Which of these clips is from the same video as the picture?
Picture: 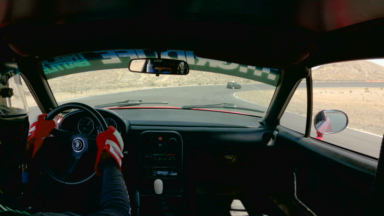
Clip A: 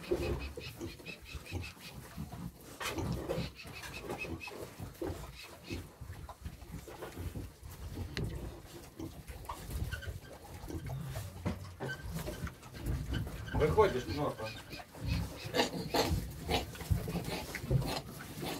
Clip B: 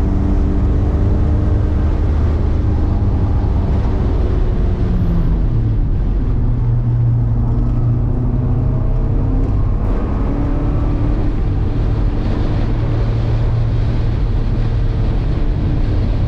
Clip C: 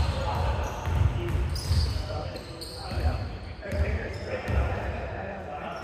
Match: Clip B